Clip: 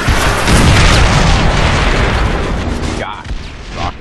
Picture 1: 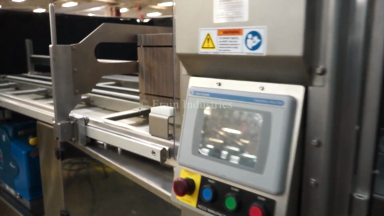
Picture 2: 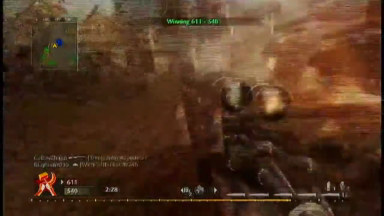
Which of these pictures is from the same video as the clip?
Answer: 2